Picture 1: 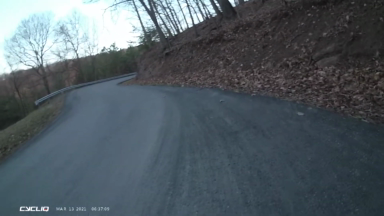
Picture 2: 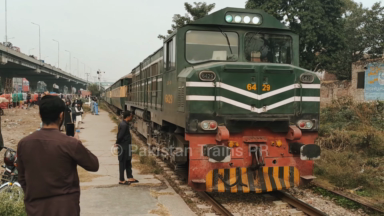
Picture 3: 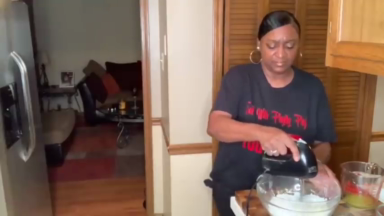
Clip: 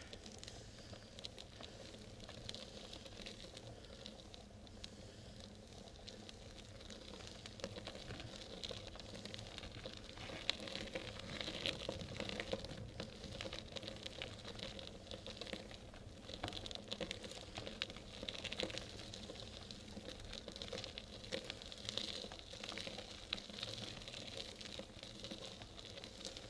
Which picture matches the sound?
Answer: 1